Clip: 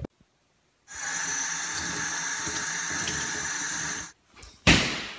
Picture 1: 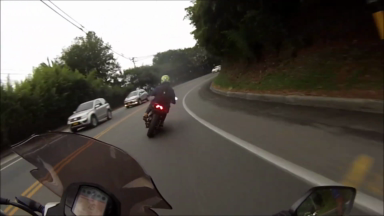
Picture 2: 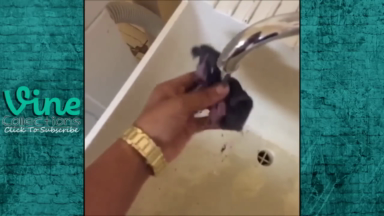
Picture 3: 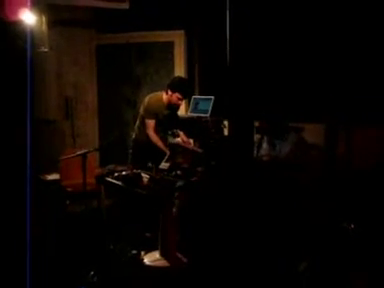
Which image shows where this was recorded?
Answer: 2